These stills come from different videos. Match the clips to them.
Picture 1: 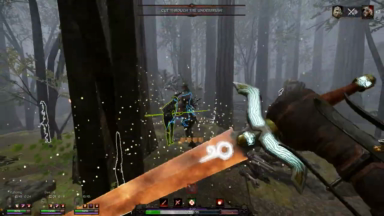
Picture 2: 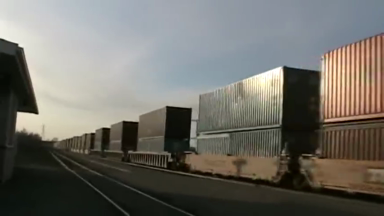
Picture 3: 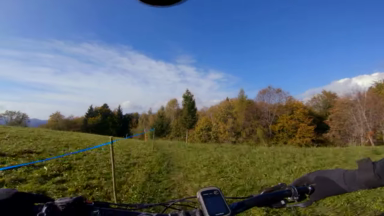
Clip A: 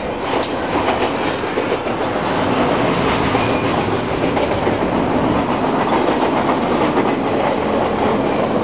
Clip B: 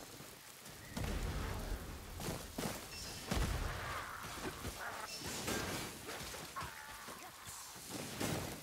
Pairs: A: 2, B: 1